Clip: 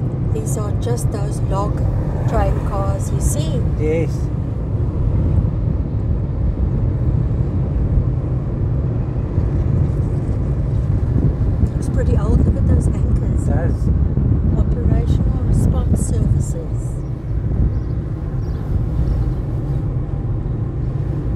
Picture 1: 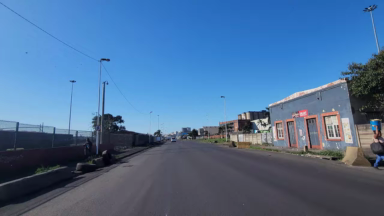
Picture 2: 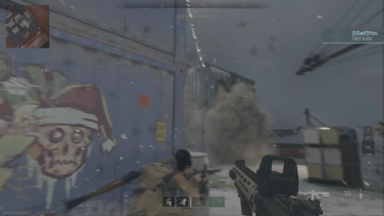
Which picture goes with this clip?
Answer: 1